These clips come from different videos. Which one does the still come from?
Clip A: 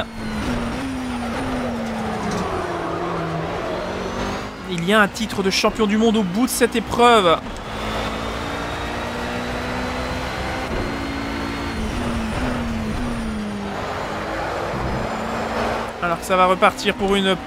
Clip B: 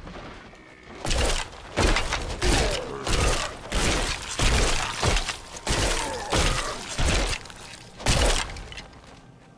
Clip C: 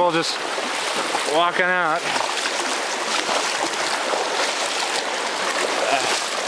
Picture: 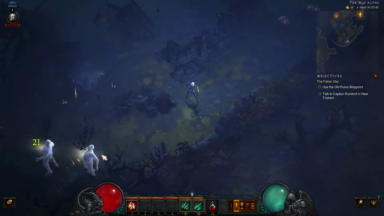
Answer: B